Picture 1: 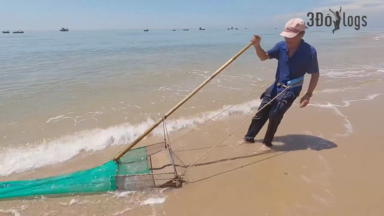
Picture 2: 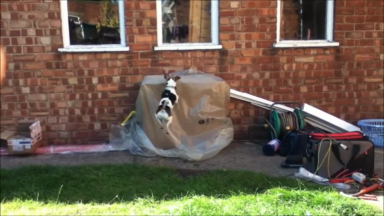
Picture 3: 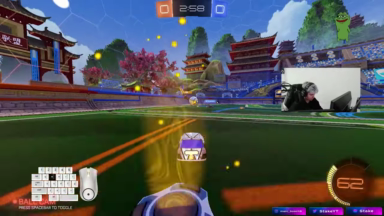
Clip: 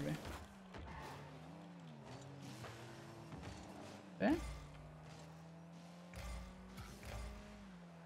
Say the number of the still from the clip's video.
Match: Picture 3